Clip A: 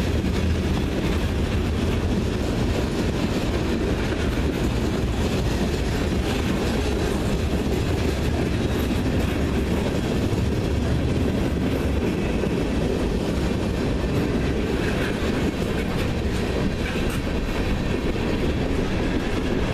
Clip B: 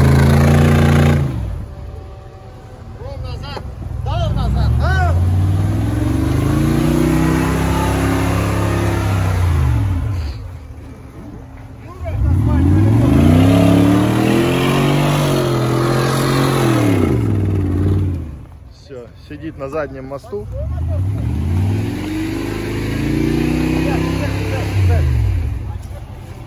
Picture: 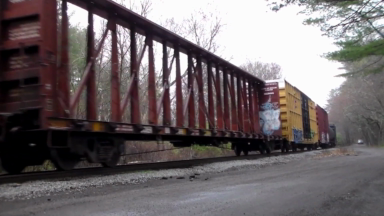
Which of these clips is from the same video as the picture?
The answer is A